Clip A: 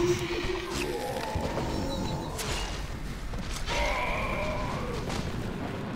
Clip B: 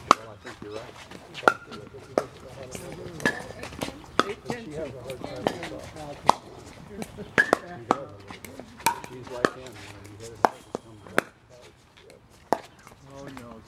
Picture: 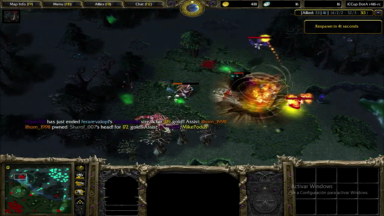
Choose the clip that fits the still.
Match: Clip A